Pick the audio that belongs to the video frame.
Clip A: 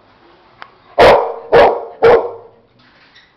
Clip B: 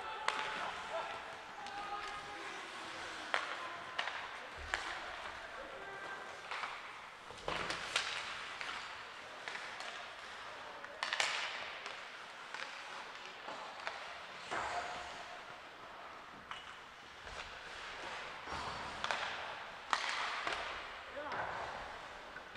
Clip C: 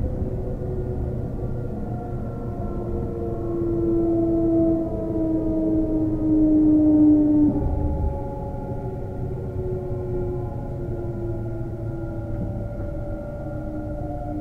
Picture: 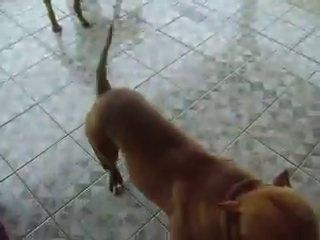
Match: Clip A